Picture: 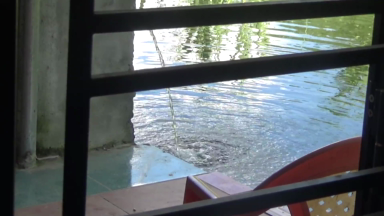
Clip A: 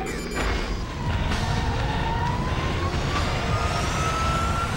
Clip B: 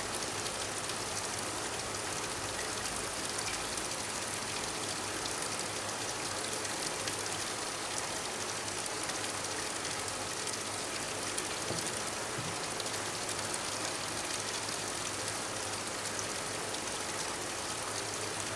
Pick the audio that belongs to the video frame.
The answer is B